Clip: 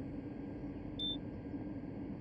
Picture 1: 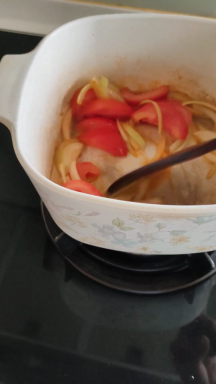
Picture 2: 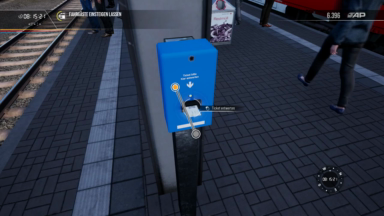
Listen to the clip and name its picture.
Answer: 2